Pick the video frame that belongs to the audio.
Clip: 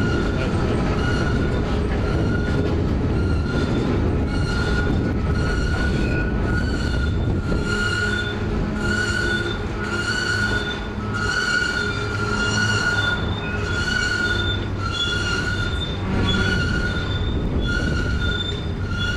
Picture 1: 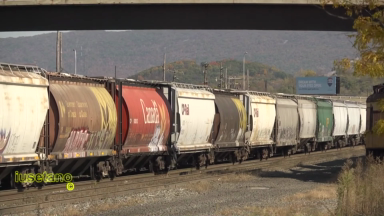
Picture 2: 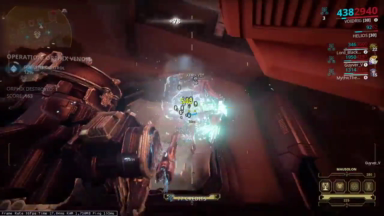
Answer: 1